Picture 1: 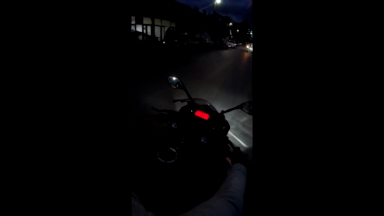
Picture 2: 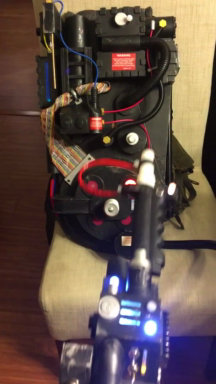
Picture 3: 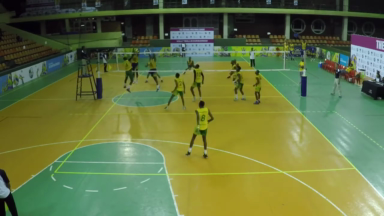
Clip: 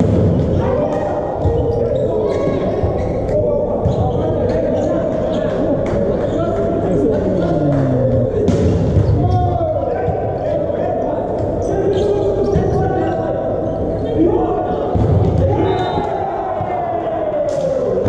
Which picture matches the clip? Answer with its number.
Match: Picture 3